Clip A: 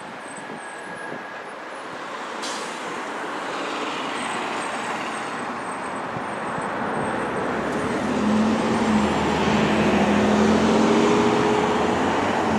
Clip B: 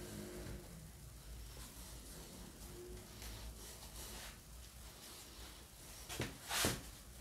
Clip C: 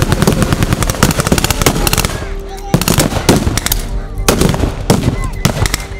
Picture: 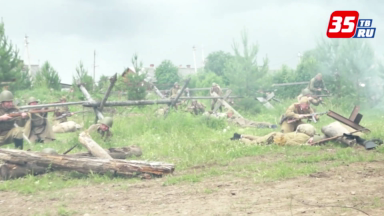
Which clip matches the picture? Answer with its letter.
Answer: C